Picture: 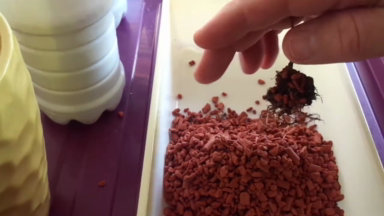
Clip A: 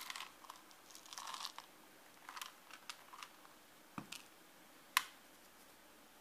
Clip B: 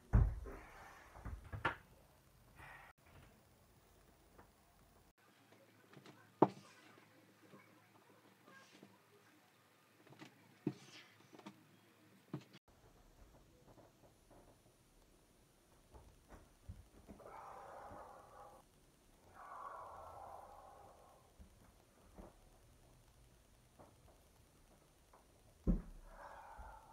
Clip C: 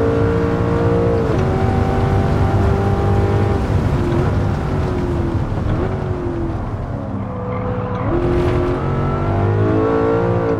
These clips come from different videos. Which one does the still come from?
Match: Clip A